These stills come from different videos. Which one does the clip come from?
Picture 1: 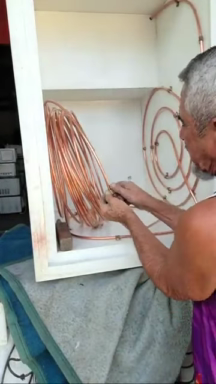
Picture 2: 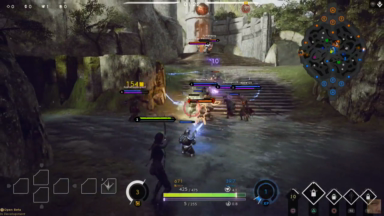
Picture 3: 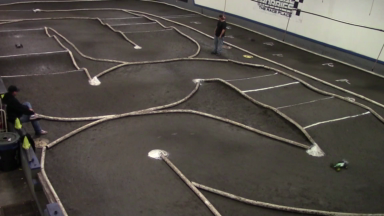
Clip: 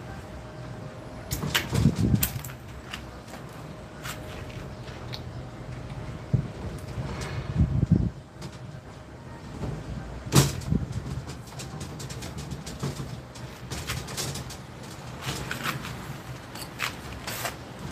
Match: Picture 1